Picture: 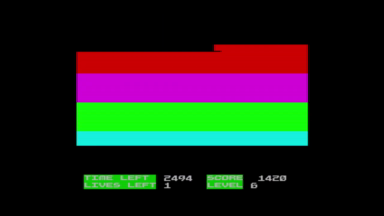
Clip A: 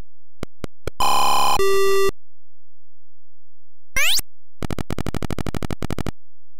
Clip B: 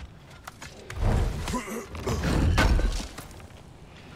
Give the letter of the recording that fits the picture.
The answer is A